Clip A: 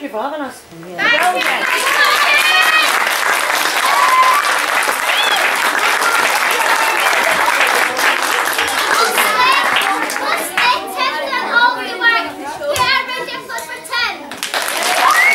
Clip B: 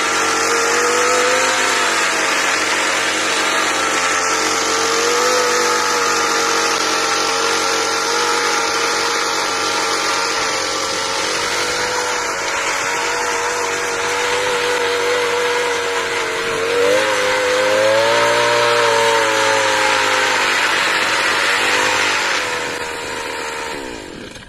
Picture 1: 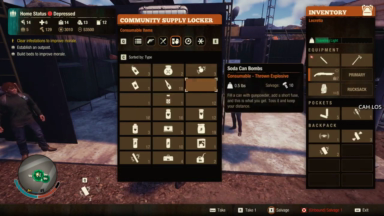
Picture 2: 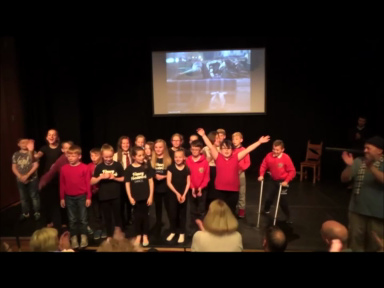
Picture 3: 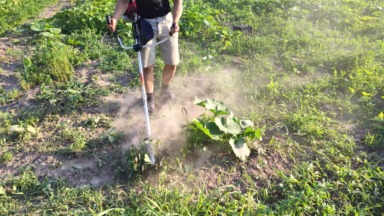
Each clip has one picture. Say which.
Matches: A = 2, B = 3